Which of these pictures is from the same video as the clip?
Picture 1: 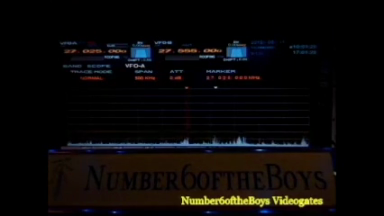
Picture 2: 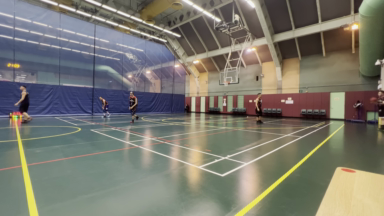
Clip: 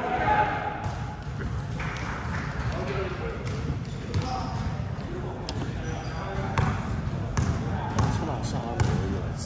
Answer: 2